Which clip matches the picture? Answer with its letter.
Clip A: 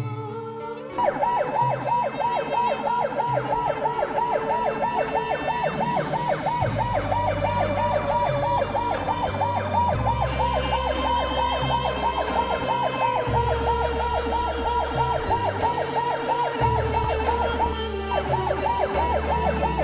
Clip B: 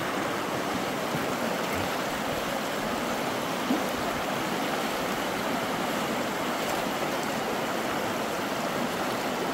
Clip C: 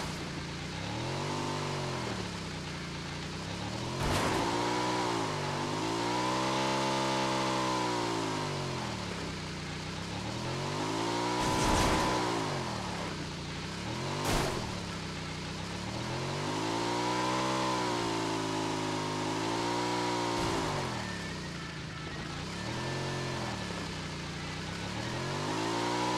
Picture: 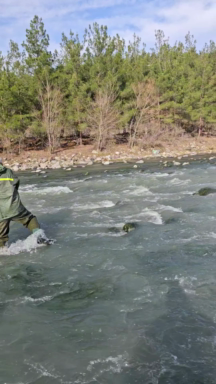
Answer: B